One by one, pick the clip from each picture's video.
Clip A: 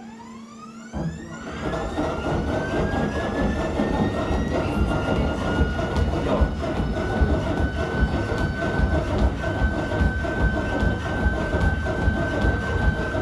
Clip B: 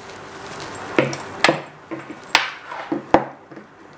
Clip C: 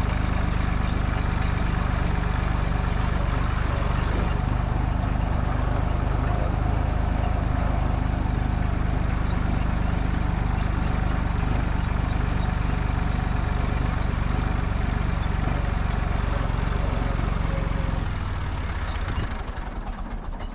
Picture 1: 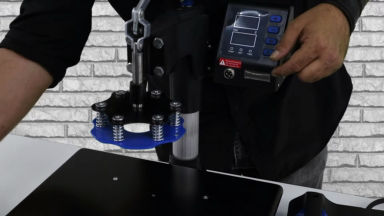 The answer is B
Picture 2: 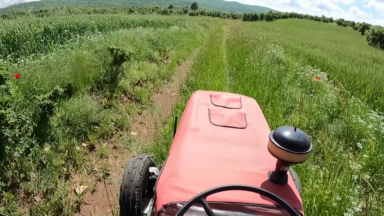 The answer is C